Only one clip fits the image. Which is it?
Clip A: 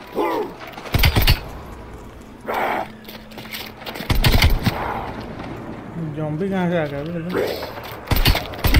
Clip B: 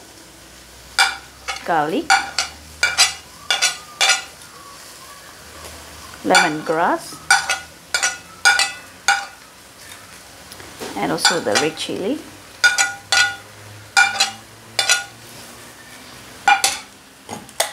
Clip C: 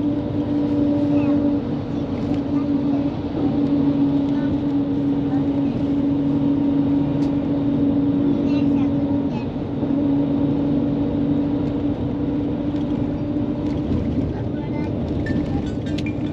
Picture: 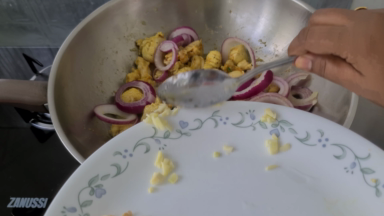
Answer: B